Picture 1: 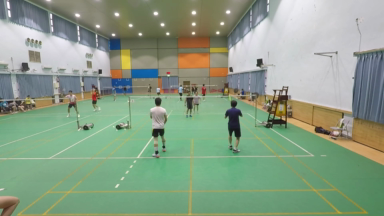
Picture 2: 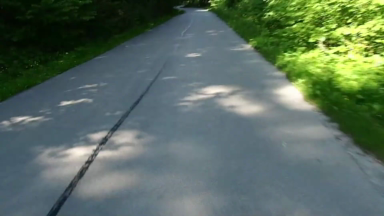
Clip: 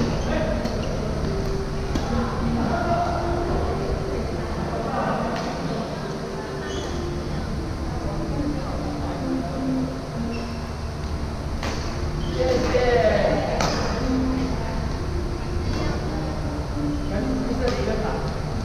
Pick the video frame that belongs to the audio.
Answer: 1